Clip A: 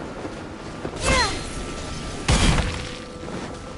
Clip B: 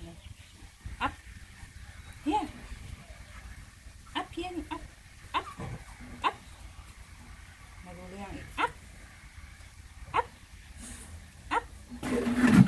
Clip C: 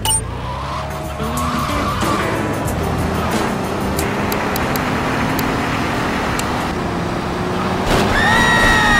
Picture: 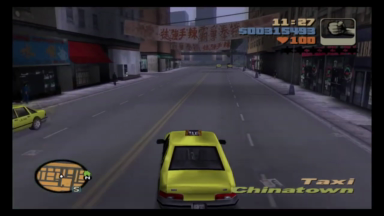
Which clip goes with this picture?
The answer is C